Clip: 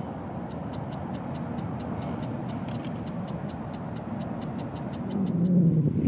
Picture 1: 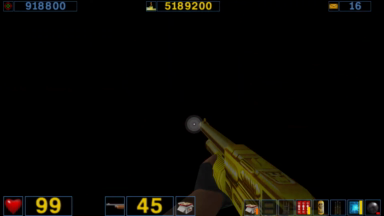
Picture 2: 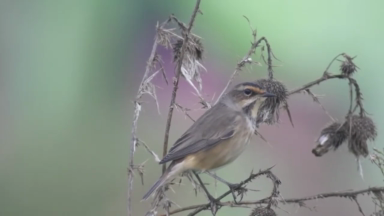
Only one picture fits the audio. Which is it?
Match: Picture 2